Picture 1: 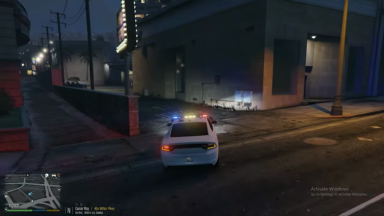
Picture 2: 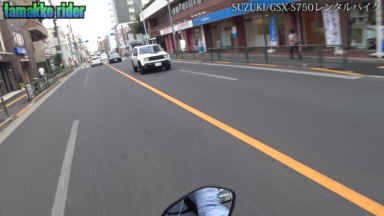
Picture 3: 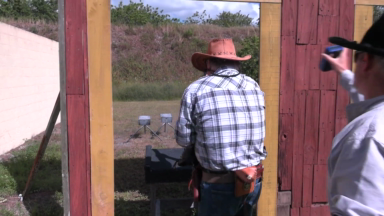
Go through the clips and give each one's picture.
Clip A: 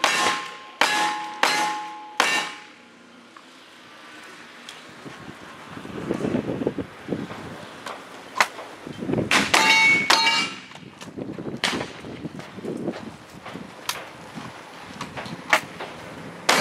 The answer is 3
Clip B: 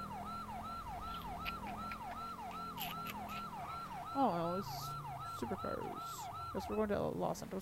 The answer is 1